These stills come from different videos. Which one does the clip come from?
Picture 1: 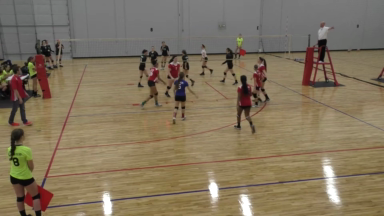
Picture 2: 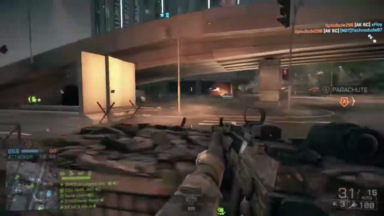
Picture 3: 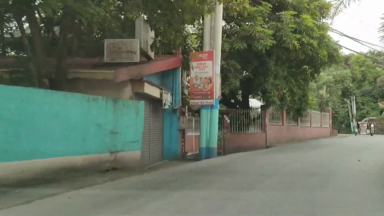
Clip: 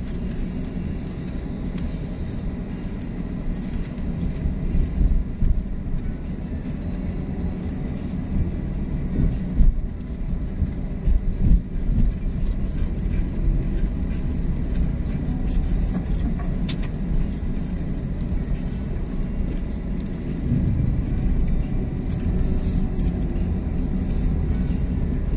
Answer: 3